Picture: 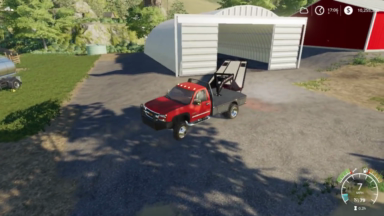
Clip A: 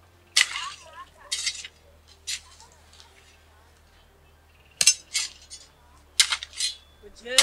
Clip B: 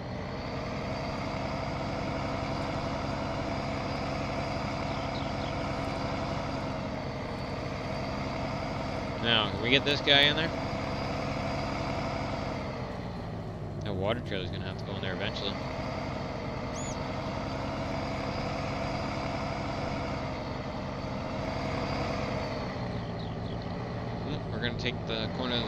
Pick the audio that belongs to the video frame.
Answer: B